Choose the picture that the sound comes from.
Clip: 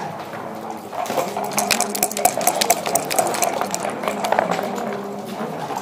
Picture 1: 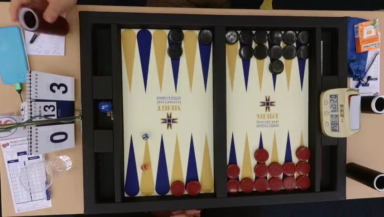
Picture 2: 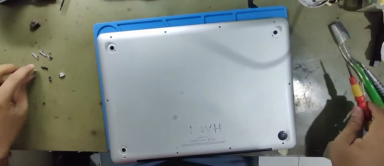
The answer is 1